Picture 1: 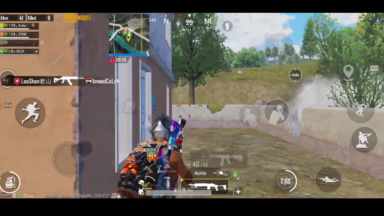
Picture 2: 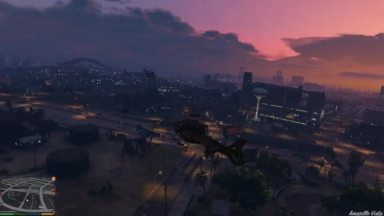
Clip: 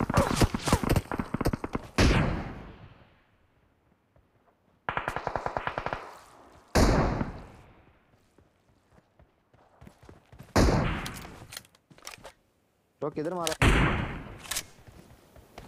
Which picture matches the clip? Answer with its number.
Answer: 1